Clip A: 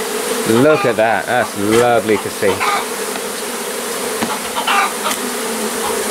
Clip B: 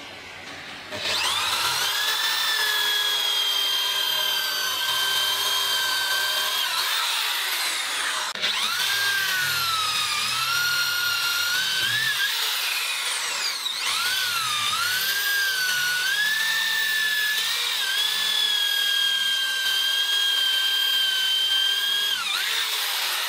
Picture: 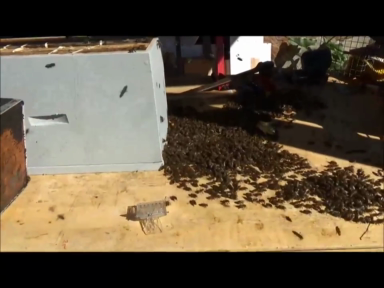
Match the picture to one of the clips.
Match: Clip A